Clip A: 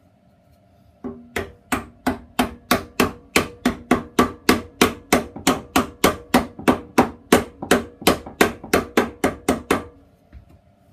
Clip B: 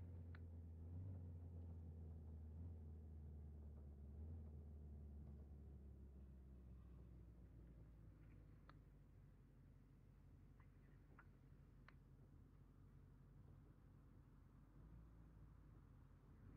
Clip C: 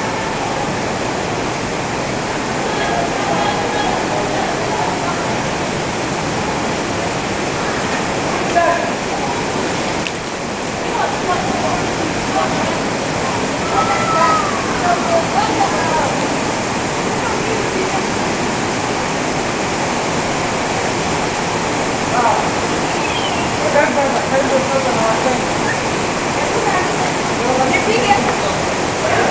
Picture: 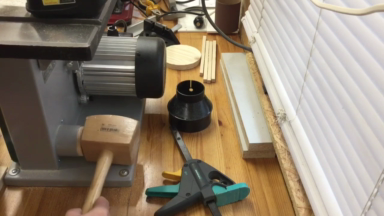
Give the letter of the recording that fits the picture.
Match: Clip A